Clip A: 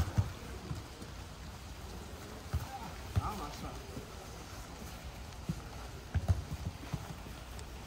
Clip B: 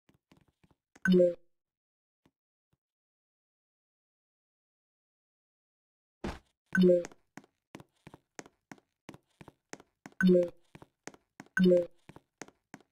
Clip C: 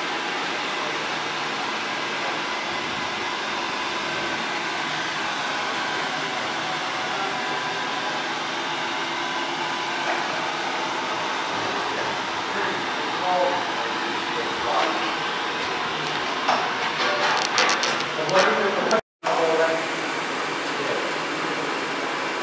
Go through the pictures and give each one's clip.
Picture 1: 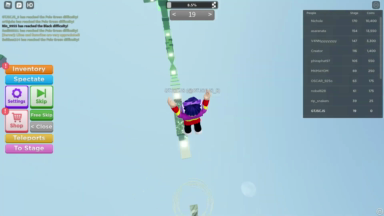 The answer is B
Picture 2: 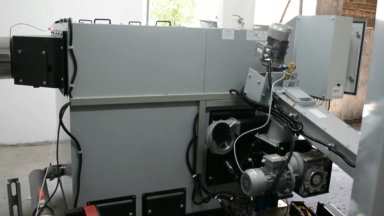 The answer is C